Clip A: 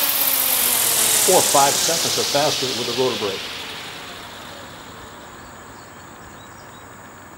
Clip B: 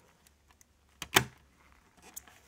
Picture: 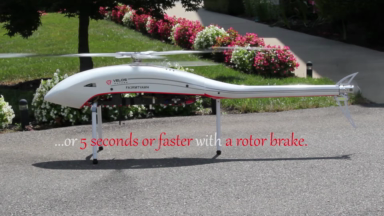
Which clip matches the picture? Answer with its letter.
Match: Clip A